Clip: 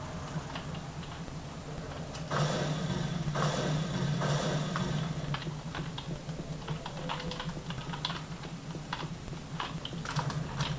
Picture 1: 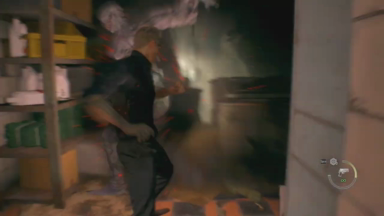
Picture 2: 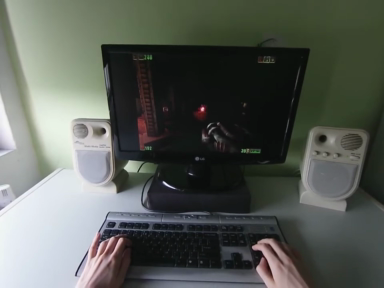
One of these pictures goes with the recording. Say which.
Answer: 2